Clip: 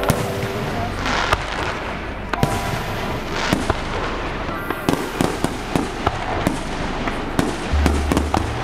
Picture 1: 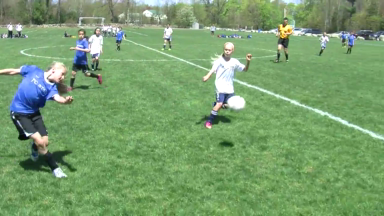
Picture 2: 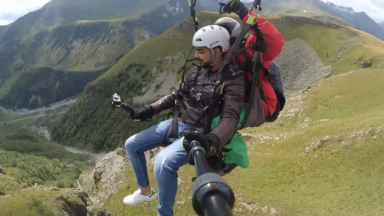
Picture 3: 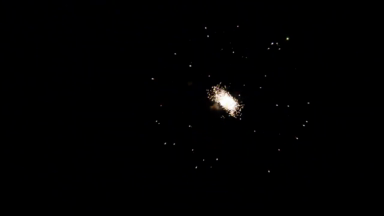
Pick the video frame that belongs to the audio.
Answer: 3